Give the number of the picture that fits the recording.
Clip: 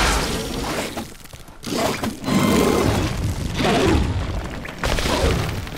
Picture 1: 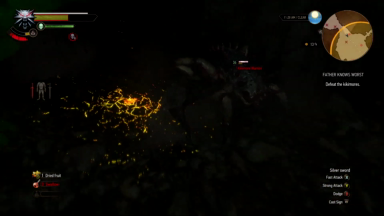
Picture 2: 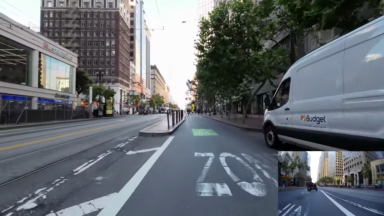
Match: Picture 1